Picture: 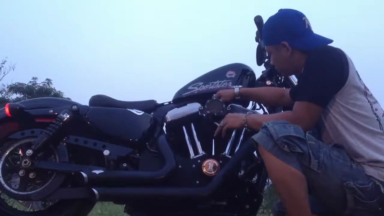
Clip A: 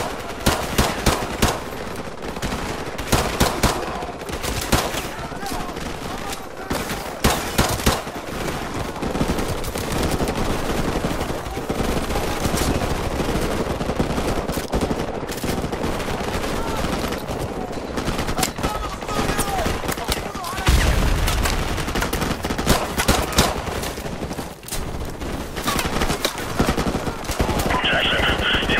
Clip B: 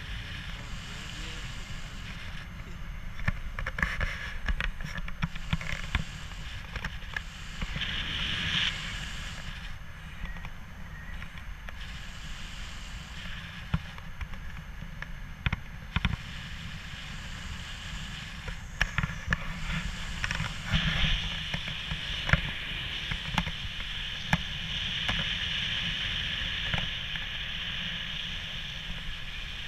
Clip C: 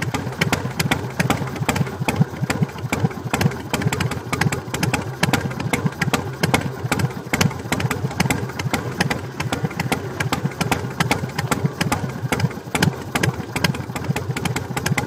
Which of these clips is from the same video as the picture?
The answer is C